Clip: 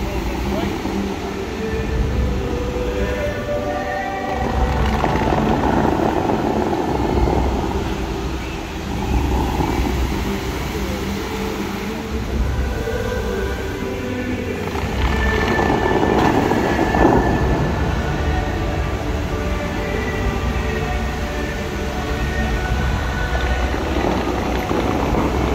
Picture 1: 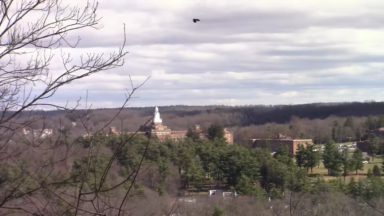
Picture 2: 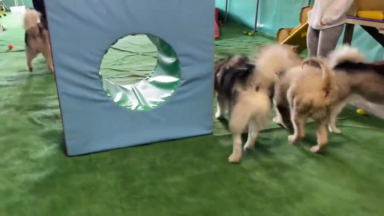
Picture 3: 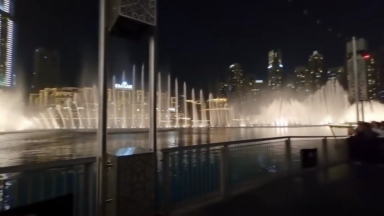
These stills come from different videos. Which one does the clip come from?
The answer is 3